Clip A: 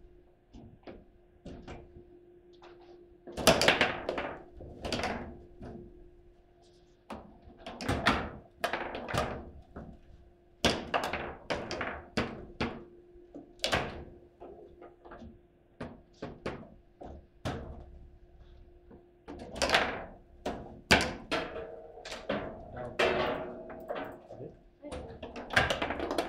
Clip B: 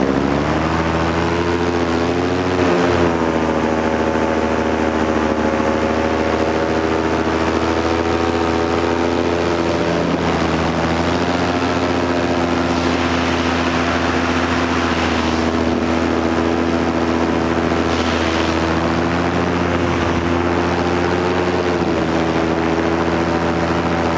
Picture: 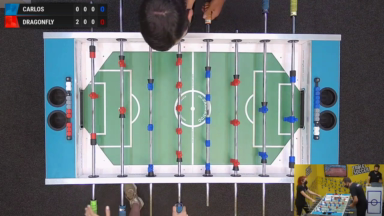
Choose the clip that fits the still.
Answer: A